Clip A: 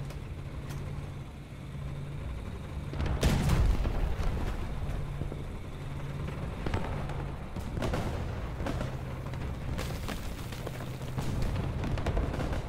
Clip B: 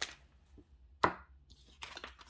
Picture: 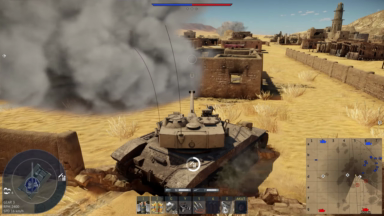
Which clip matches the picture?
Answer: A